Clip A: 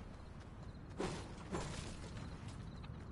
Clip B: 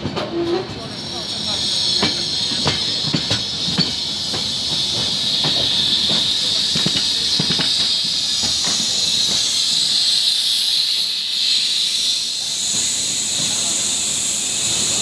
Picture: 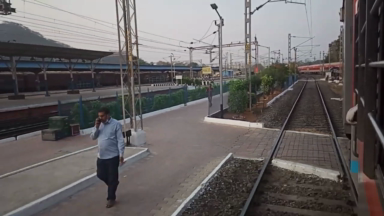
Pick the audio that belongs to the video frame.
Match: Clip B